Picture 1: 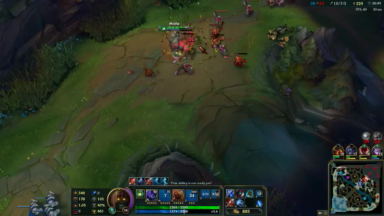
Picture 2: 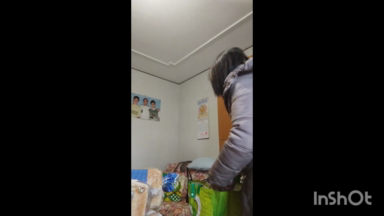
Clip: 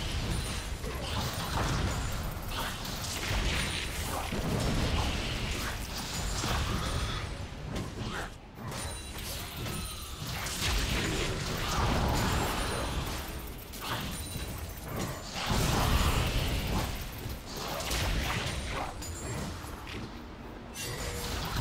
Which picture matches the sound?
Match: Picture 1